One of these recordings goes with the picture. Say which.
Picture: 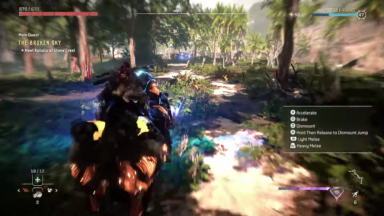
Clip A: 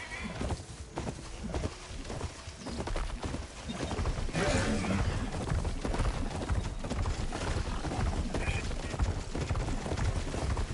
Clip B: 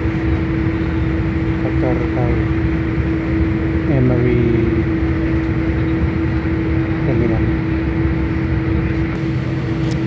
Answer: A